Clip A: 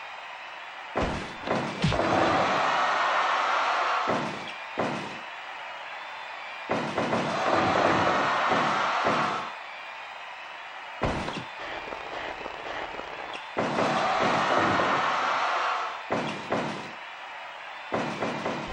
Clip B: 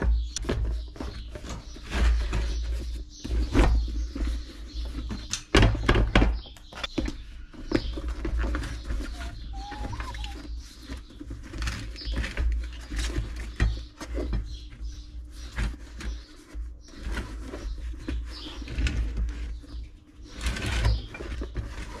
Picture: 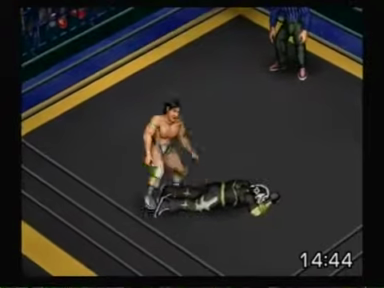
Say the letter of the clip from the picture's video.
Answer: A